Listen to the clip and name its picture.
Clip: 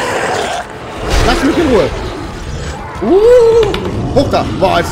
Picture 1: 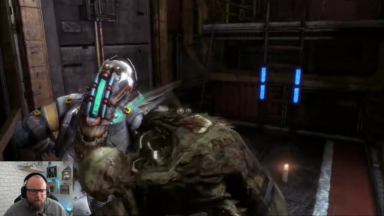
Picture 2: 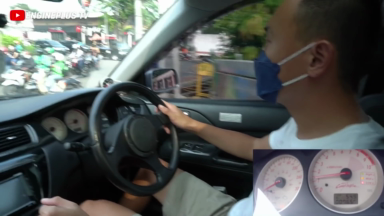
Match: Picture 1